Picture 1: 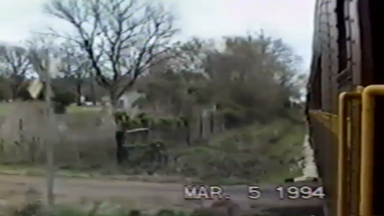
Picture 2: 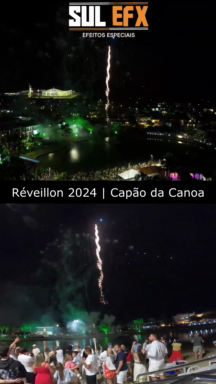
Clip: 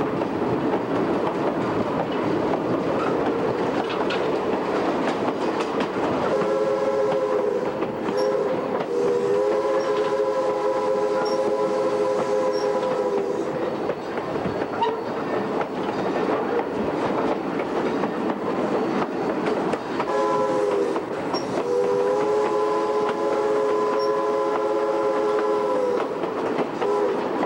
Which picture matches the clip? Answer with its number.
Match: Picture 1